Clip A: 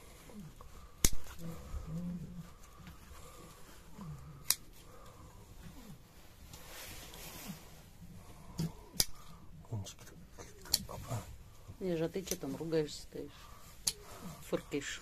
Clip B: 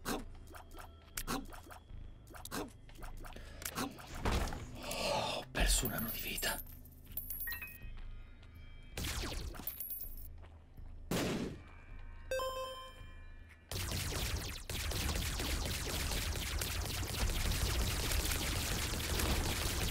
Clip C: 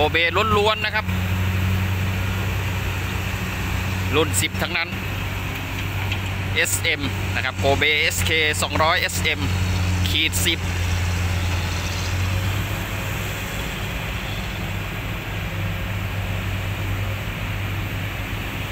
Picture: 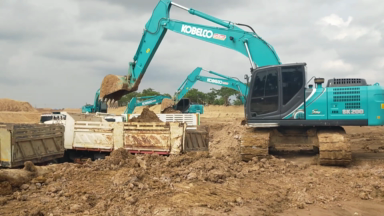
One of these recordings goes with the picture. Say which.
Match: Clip C